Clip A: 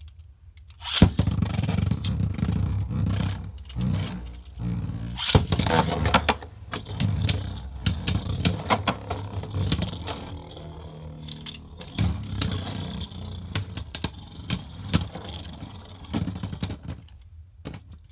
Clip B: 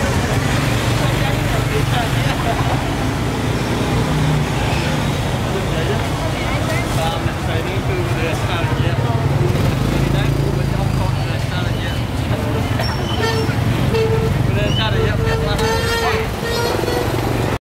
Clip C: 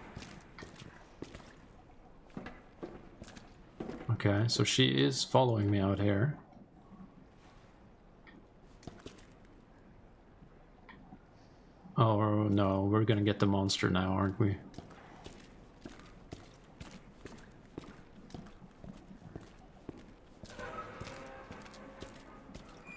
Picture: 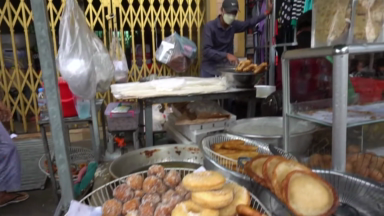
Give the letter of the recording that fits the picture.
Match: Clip B